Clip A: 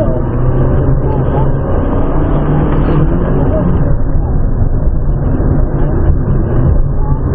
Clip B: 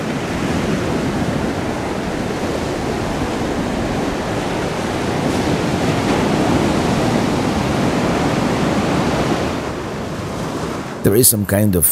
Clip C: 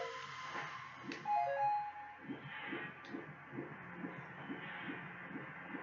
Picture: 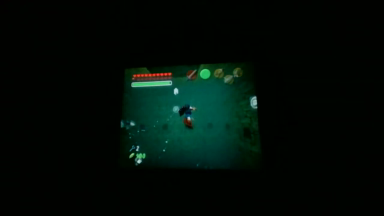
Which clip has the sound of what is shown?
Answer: C